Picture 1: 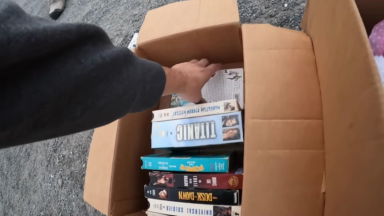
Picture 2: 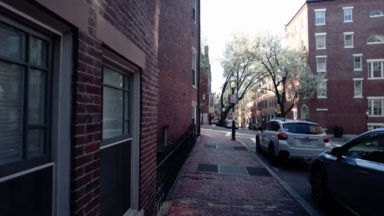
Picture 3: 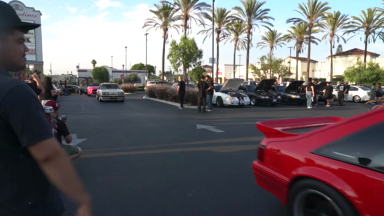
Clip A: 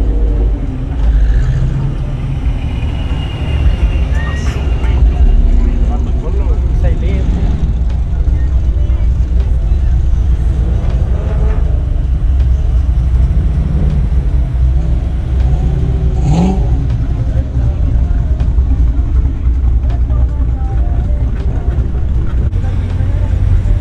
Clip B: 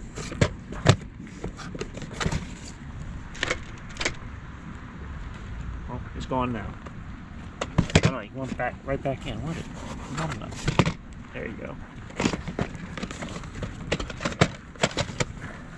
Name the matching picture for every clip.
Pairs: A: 3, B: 1